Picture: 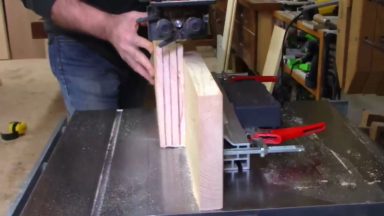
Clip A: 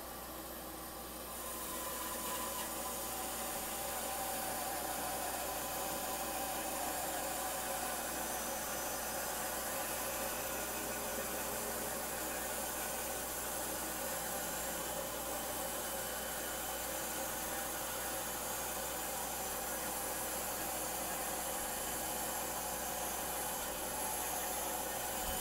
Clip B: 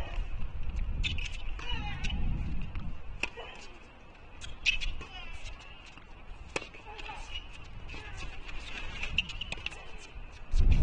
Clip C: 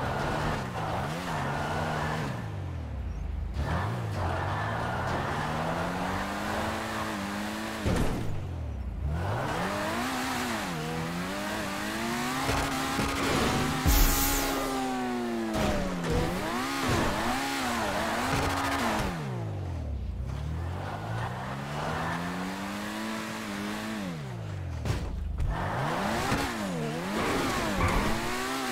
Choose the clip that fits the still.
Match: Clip A